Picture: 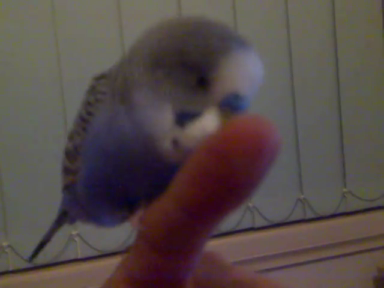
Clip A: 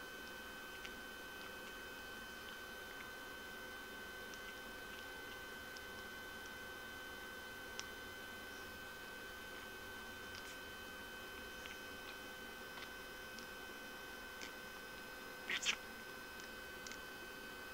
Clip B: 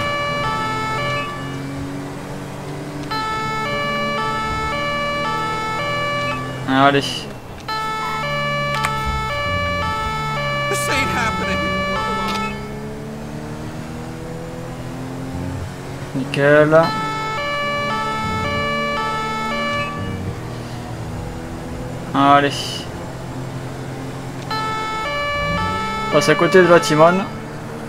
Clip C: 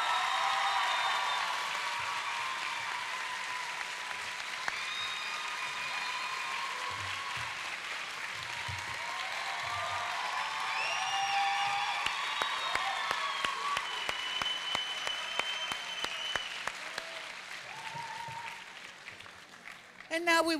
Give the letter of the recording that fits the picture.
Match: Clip A